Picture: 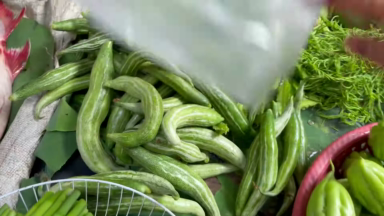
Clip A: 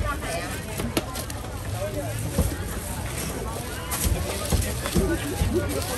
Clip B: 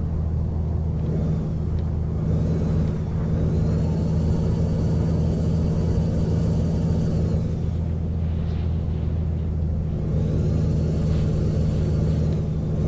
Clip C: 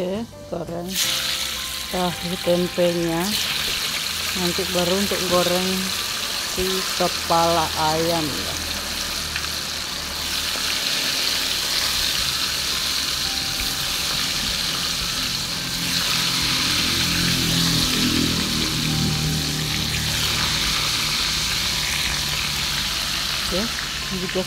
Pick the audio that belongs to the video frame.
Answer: A